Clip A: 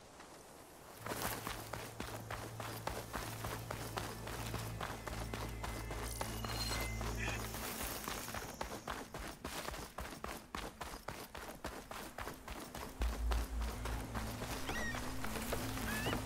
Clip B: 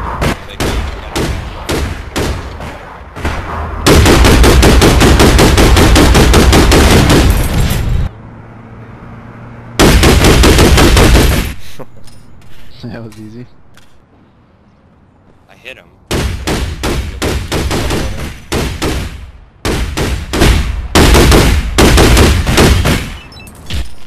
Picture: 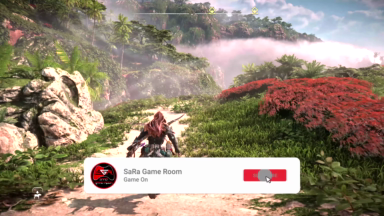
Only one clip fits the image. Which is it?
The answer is A